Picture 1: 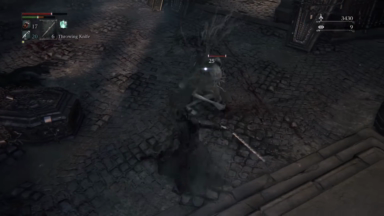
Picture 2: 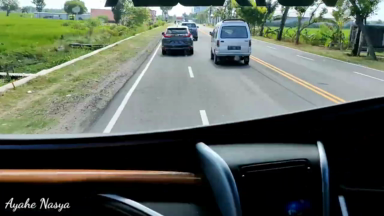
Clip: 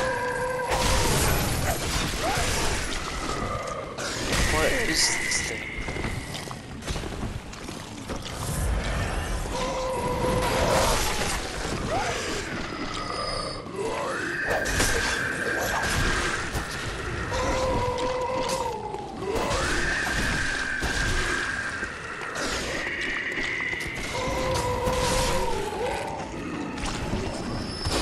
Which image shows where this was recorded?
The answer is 1